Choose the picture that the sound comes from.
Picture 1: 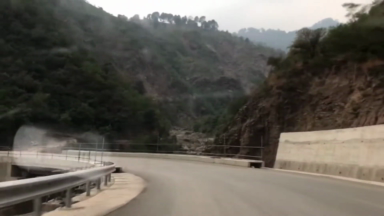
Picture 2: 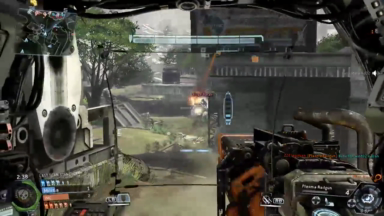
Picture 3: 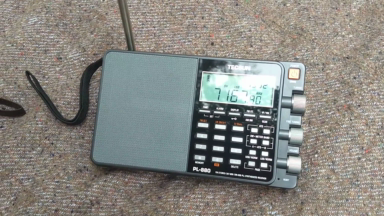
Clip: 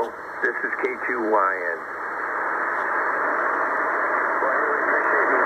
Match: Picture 3